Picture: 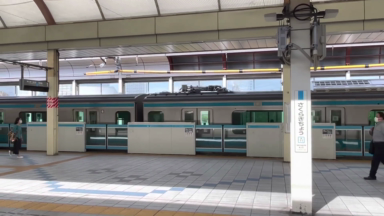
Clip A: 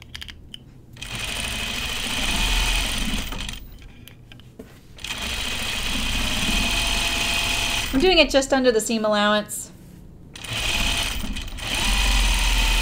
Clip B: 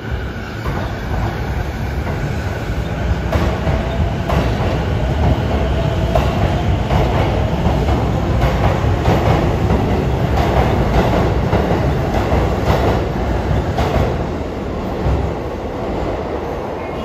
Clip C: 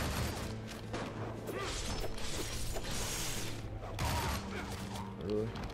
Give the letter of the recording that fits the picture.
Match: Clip B